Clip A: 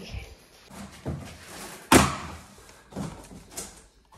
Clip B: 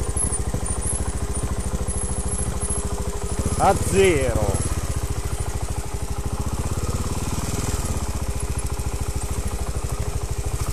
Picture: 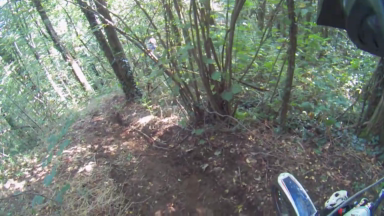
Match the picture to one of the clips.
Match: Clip B